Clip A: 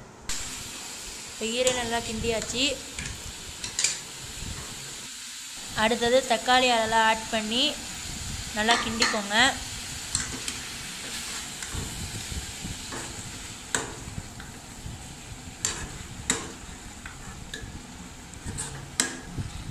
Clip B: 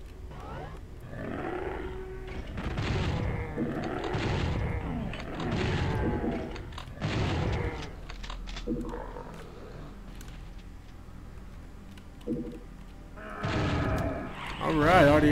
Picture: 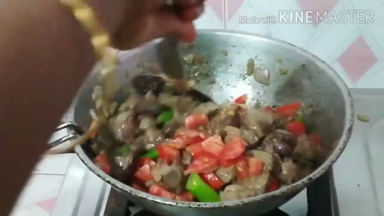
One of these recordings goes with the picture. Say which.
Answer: A